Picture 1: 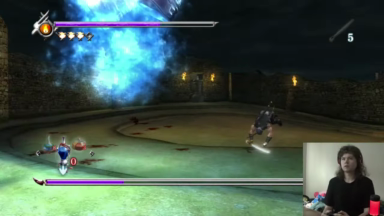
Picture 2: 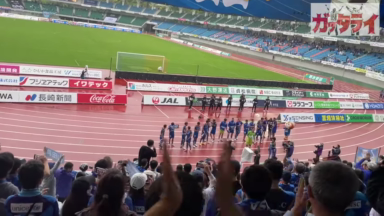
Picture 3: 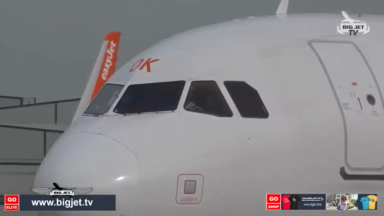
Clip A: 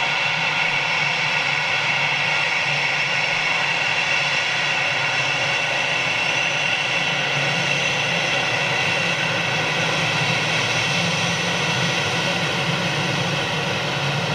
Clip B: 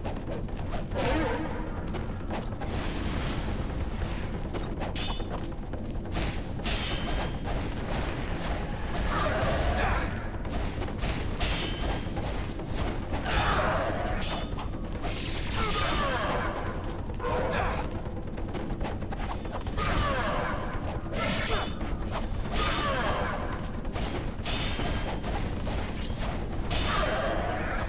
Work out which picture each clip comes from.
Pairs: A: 3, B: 1